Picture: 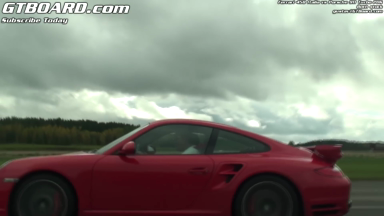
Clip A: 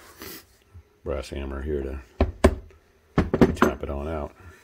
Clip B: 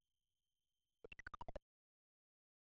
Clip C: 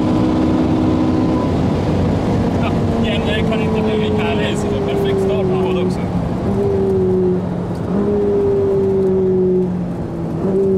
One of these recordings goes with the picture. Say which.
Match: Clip C